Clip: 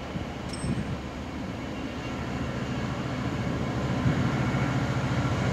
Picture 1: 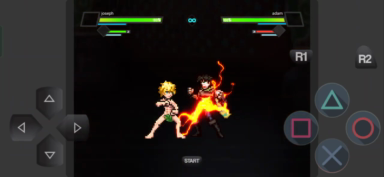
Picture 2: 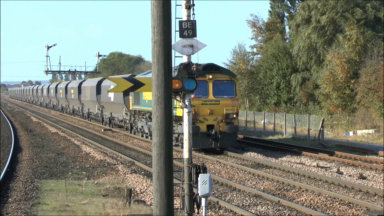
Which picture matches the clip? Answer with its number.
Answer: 2